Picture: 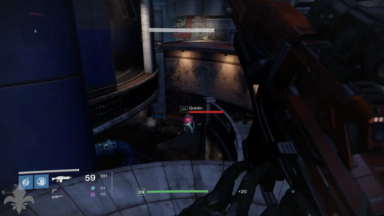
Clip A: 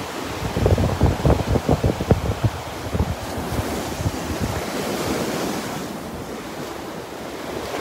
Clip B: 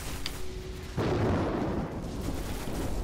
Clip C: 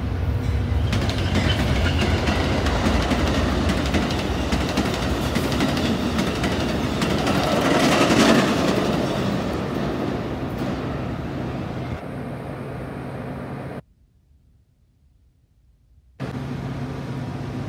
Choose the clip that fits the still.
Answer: B